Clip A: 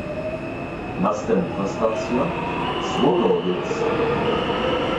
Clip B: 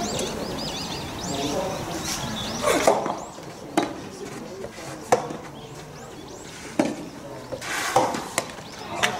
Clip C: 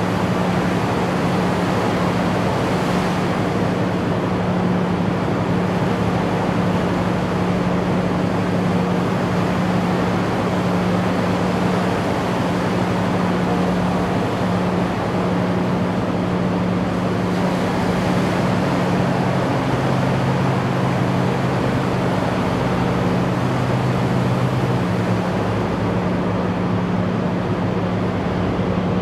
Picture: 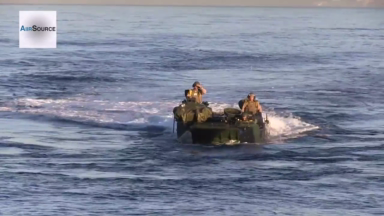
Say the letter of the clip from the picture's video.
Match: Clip C